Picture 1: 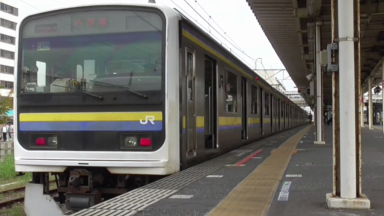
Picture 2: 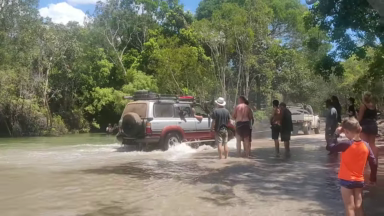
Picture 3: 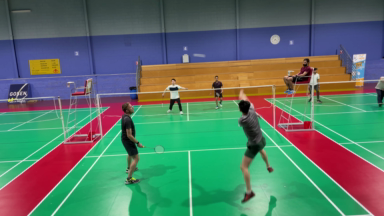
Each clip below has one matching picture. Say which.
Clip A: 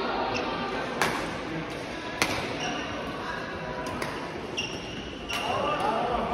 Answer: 3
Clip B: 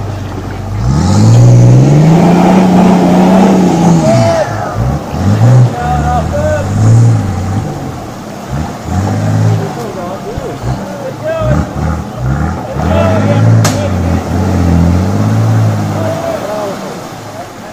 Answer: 2